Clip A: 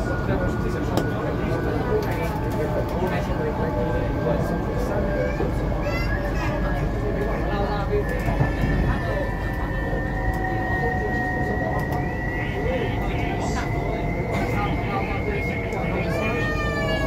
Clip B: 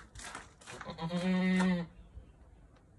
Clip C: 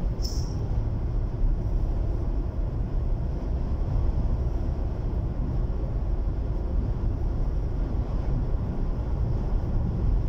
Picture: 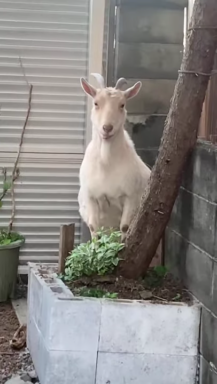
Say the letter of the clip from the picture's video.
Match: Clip B